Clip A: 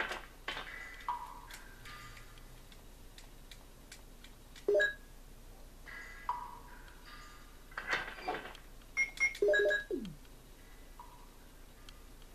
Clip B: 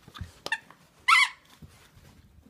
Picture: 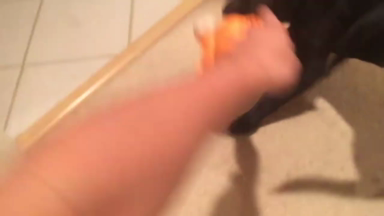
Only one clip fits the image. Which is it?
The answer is B